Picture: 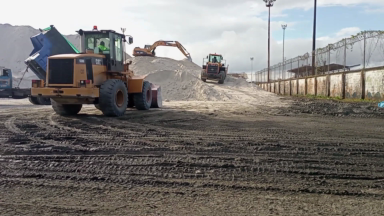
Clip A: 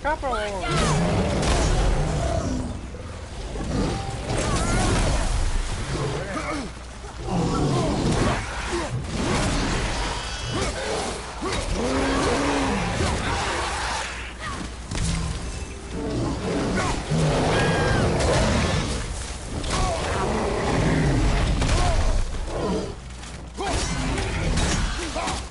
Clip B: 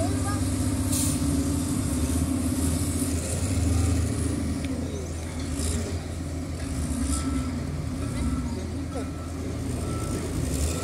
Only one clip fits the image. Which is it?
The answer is B